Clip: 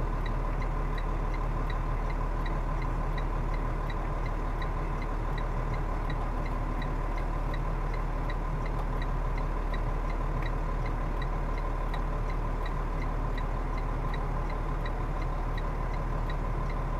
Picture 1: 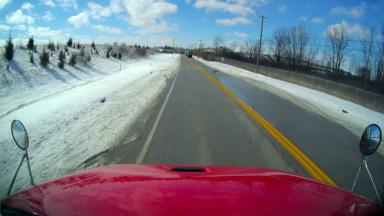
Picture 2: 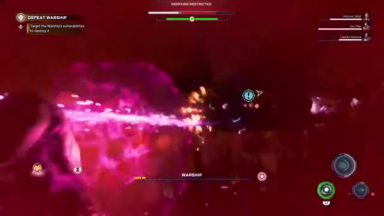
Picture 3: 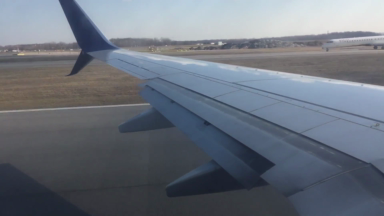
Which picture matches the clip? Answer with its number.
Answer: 1